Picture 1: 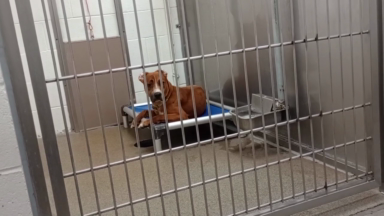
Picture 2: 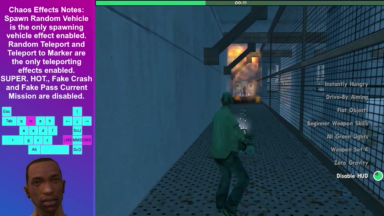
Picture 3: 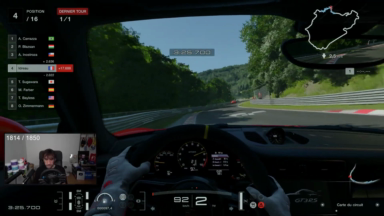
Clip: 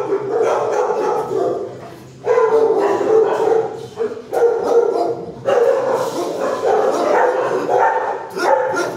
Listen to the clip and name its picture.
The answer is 1